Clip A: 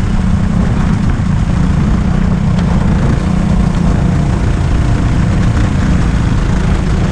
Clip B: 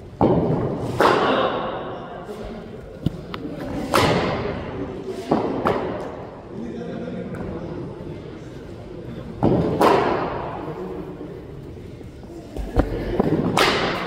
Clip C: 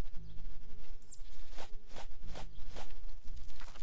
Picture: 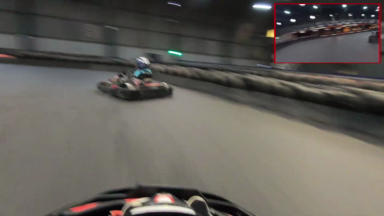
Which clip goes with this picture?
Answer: A